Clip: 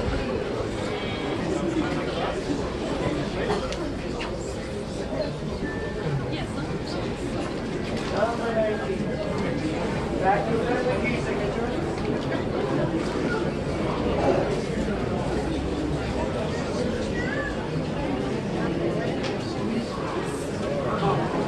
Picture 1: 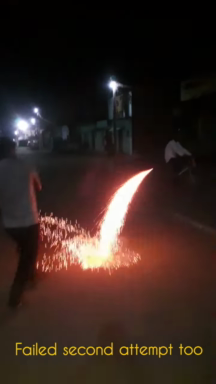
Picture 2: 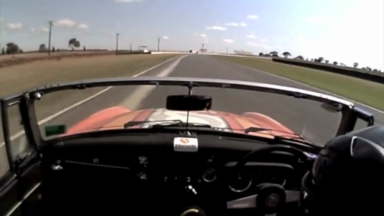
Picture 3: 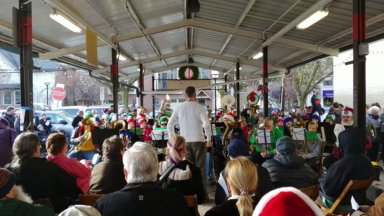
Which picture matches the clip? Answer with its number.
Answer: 3